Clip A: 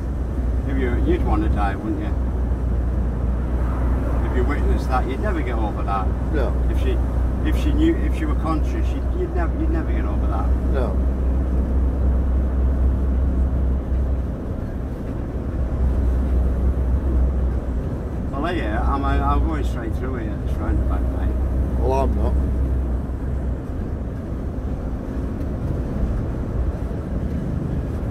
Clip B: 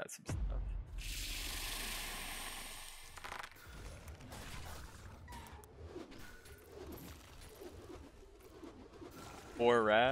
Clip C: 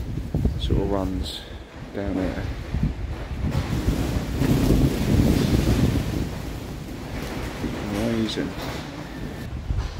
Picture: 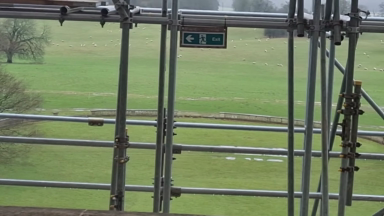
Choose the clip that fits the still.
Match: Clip C